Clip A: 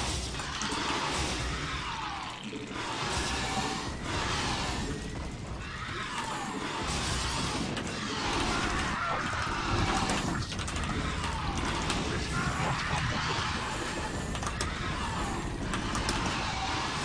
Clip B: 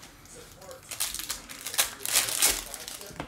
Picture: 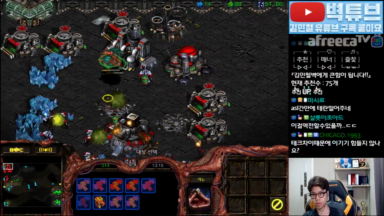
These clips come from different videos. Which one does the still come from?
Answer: A